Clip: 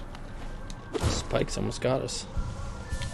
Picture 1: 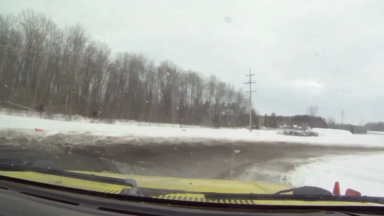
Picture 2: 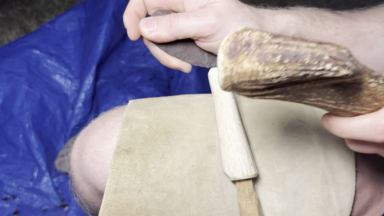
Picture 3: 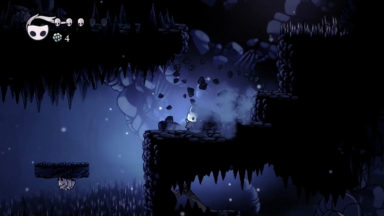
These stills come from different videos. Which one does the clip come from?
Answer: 3